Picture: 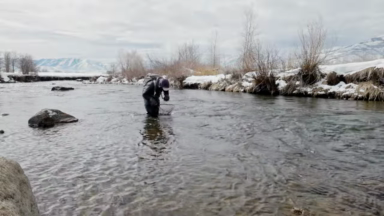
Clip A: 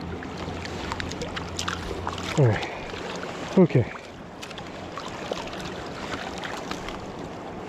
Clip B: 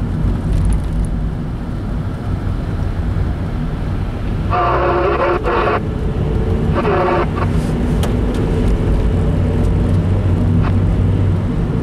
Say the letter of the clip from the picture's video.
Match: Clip A